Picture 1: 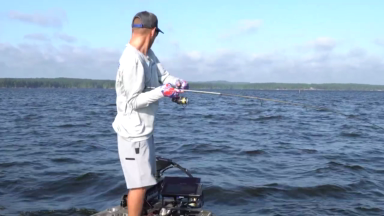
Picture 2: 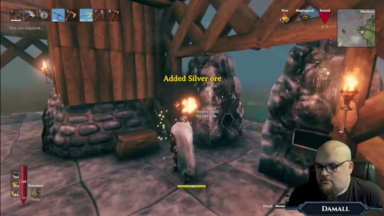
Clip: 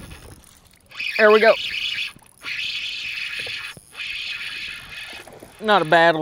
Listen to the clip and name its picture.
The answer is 1